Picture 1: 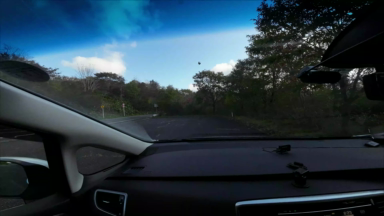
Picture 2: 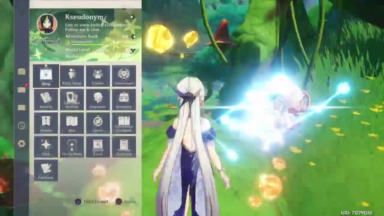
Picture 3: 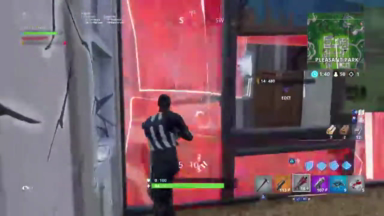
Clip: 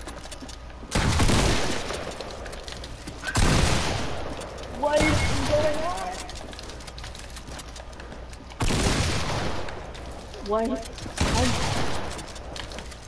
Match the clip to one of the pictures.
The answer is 3